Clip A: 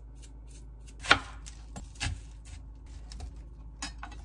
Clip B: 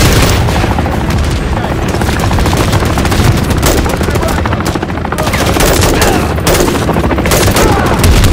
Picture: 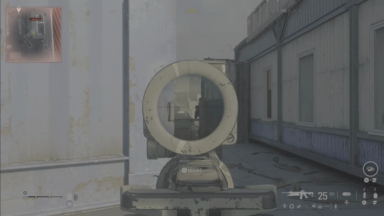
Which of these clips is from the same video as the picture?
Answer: B